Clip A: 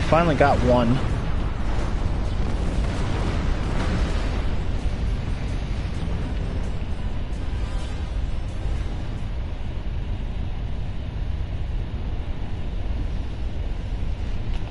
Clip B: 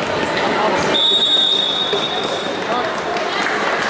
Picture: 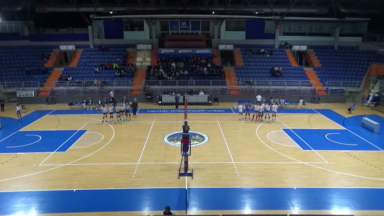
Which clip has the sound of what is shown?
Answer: B